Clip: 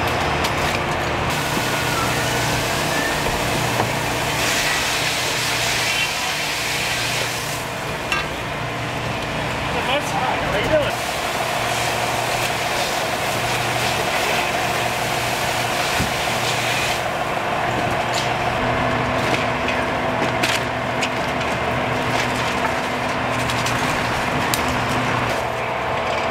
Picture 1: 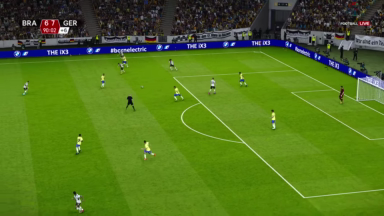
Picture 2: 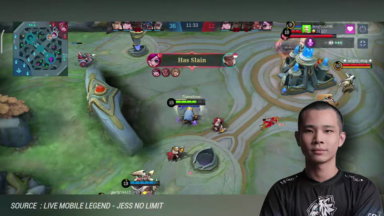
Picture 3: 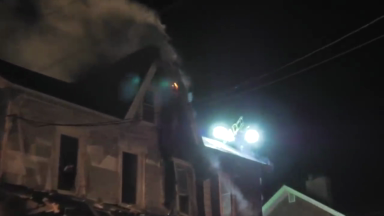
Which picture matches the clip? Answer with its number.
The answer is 3